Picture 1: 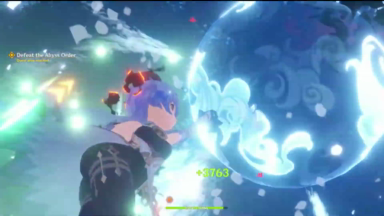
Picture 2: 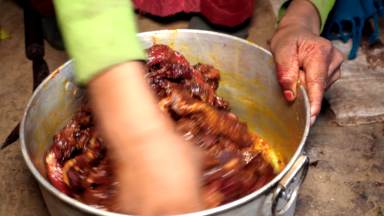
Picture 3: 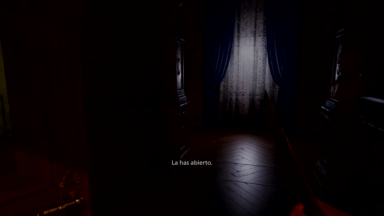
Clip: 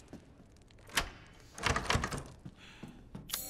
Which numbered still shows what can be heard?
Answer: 3